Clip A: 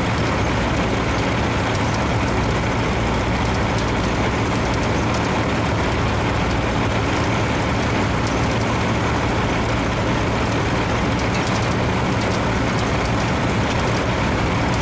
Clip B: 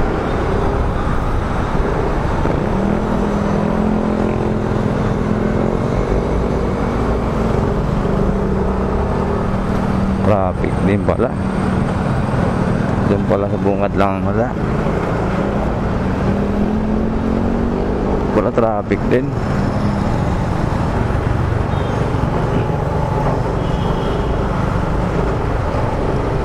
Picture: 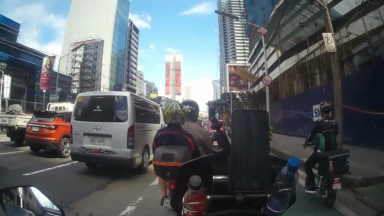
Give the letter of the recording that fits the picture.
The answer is B